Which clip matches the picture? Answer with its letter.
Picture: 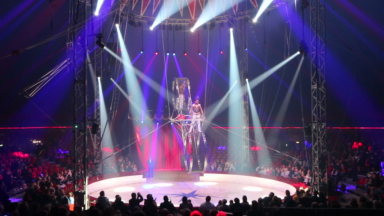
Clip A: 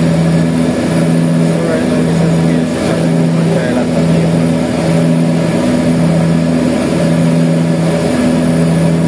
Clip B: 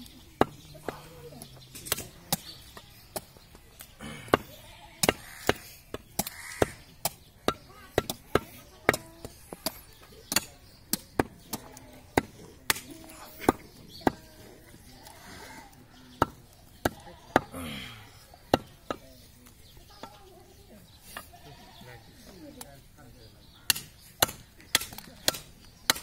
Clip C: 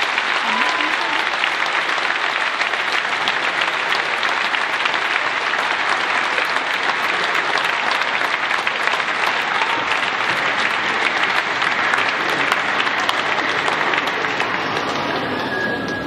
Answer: C